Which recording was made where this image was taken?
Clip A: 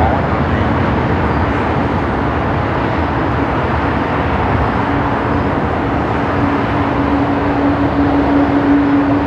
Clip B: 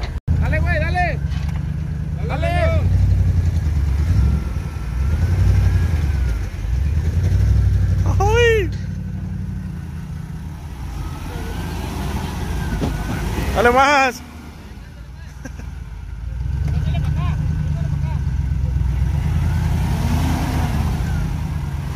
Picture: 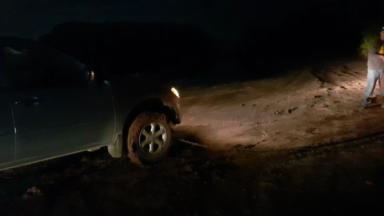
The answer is B